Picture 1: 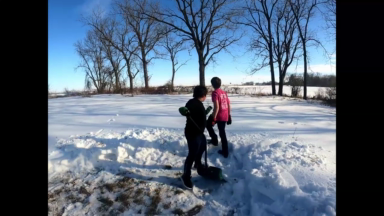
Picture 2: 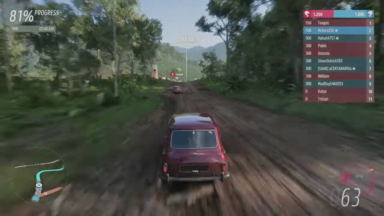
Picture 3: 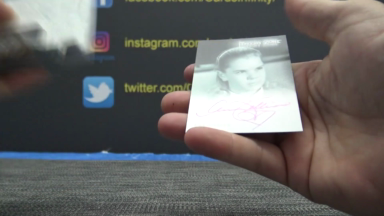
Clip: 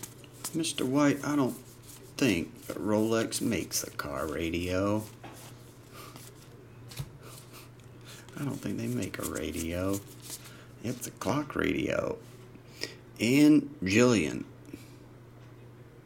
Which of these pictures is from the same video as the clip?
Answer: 3